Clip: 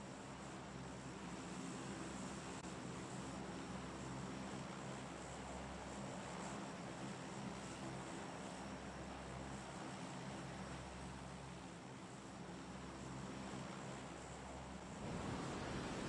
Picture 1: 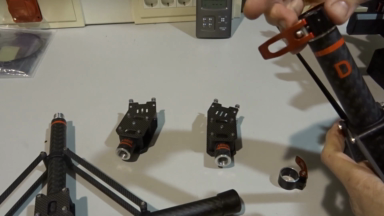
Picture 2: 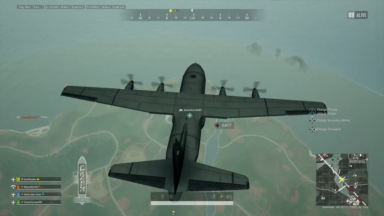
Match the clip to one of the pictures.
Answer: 2